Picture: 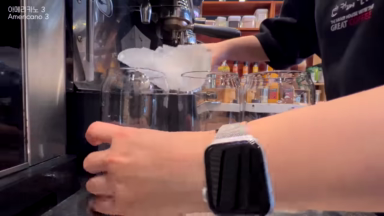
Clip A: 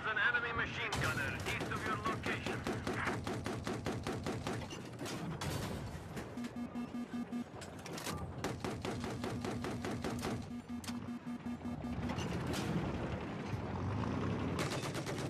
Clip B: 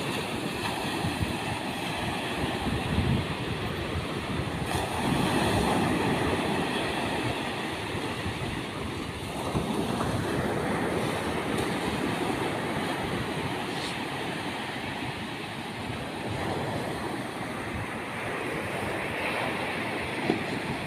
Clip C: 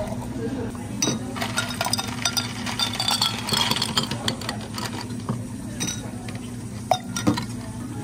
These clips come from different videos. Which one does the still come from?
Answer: C